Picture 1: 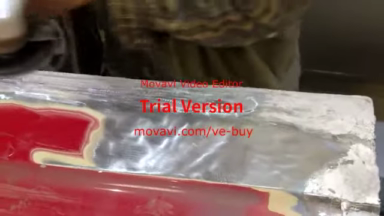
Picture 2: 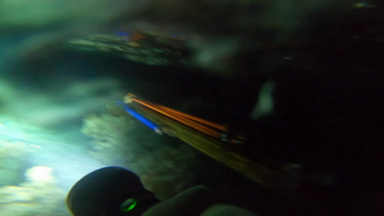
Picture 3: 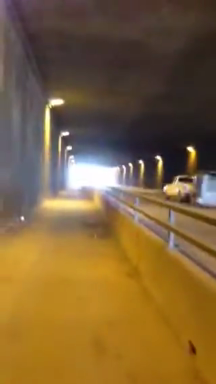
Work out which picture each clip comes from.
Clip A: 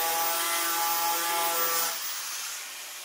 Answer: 1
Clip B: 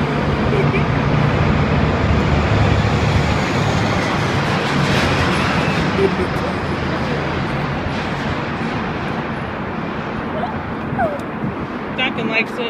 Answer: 3